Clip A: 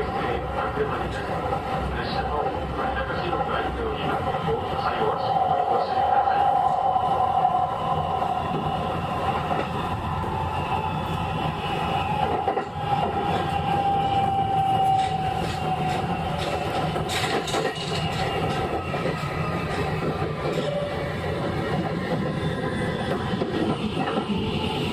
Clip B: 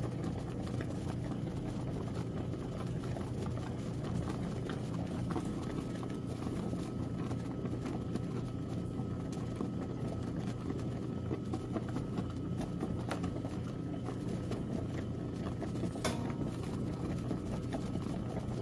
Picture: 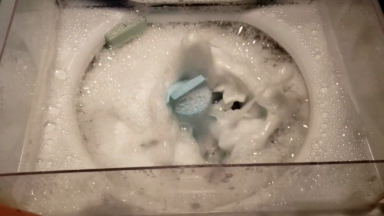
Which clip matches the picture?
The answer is B